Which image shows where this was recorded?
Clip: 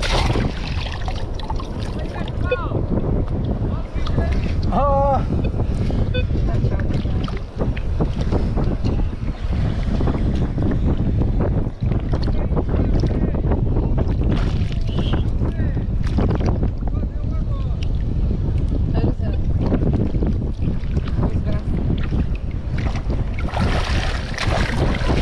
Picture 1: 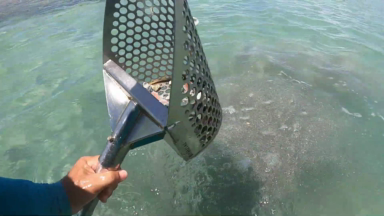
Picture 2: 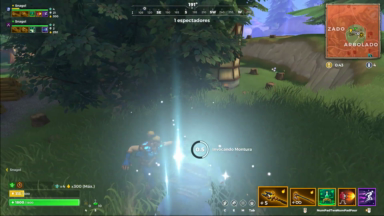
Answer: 1